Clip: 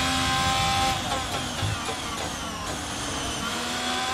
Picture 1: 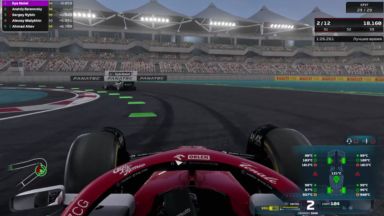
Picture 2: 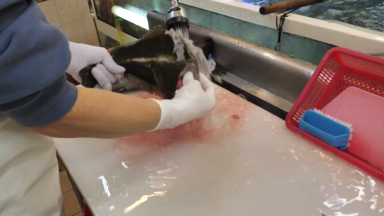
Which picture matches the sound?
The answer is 1